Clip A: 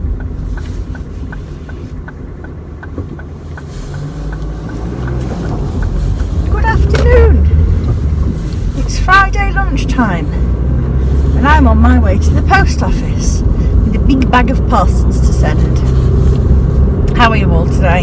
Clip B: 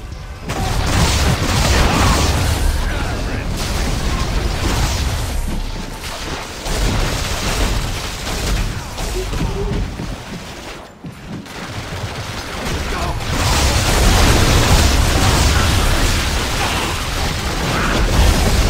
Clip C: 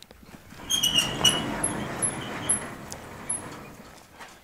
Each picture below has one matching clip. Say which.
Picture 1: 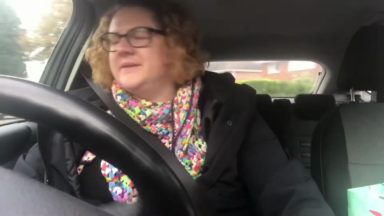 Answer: A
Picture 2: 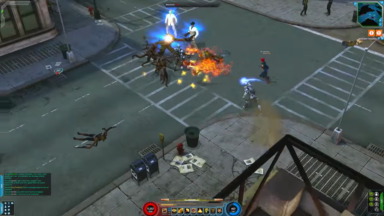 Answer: B